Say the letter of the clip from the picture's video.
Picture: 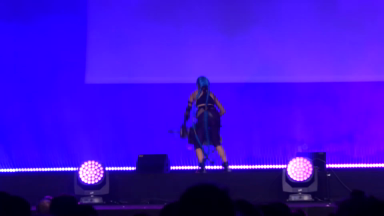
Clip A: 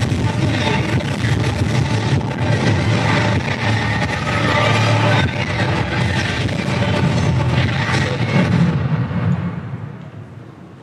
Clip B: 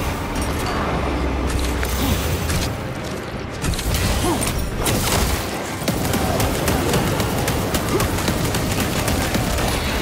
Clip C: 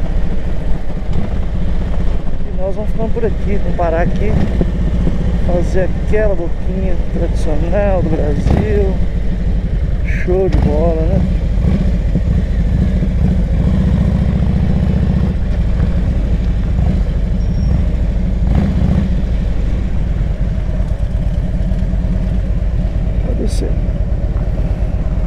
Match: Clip A